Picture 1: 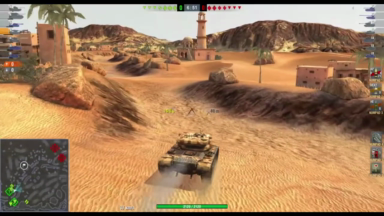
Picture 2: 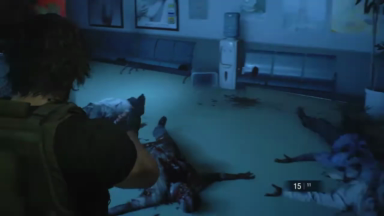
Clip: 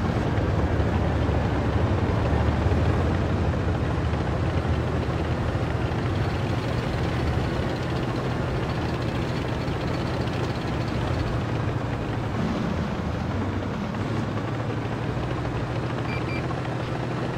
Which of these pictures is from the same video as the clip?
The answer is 1